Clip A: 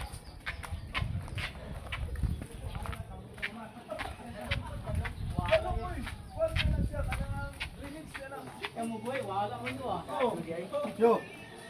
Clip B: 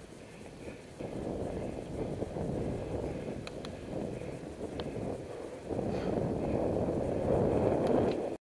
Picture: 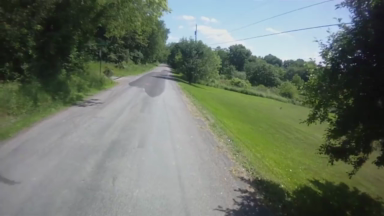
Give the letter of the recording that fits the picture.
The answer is B